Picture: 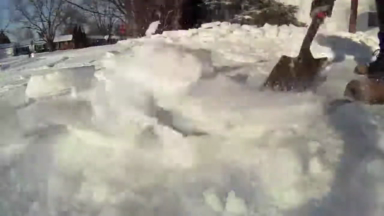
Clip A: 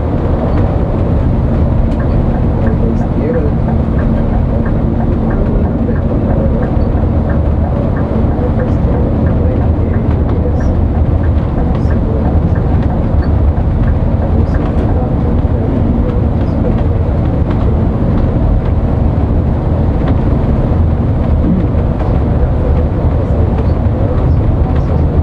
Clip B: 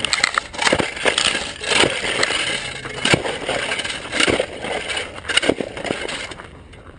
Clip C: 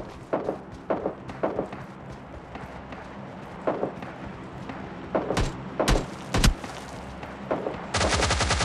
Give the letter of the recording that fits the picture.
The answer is B